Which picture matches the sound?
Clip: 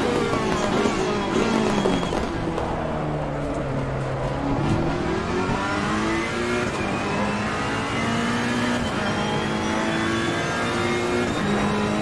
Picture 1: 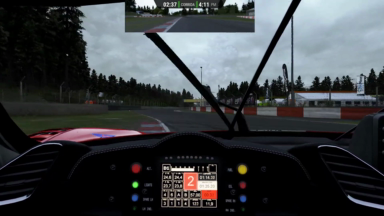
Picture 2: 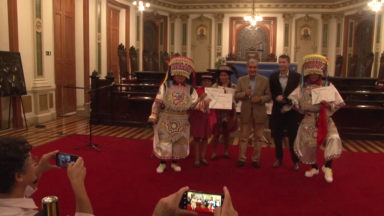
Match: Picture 1